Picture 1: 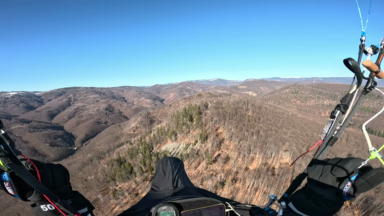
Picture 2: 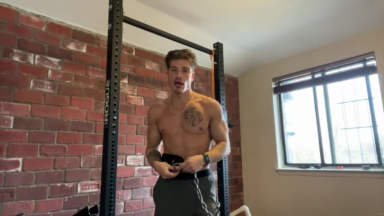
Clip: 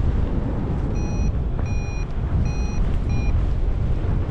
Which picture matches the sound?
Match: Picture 1